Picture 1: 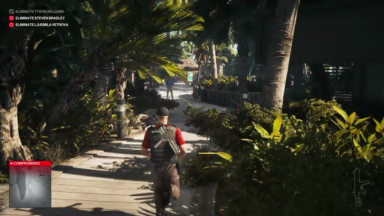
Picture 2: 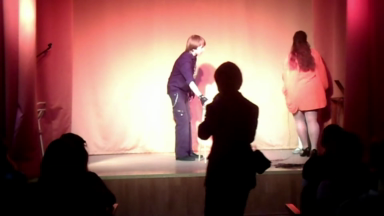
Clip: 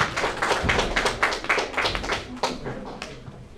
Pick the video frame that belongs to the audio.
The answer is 2